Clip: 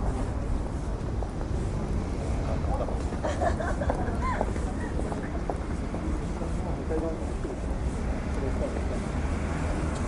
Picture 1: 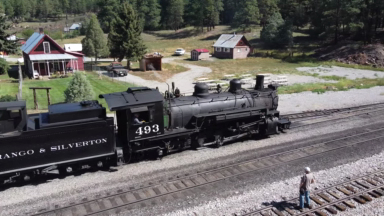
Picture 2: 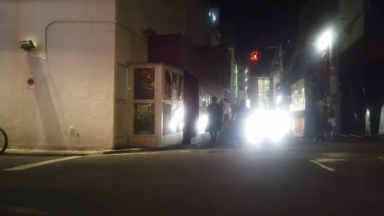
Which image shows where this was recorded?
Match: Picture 2